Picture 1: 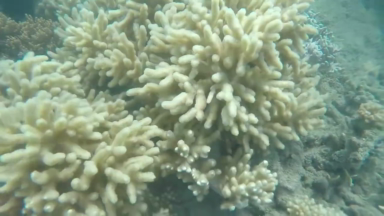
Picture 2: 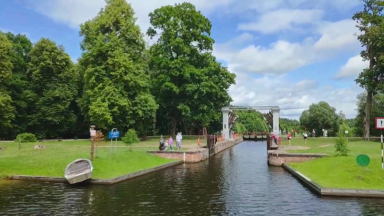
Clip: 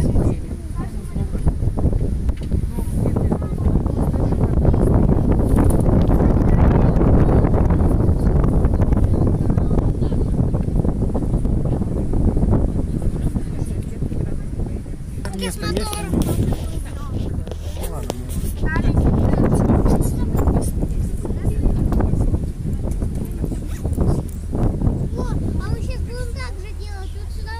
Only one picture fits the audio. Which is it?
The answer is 2